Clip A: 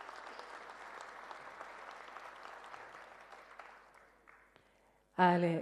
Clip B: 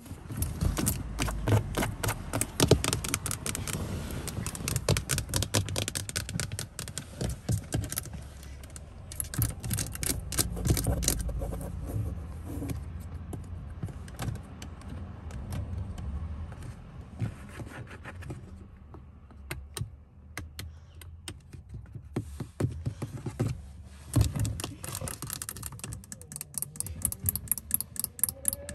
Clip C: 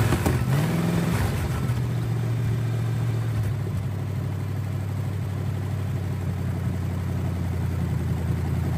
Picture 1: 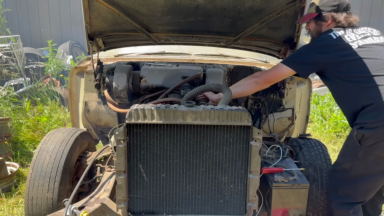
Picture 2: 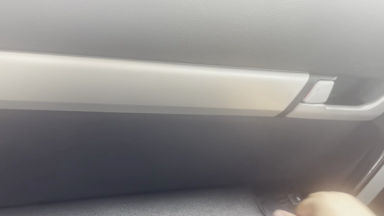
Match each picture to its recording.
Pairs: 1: C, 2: B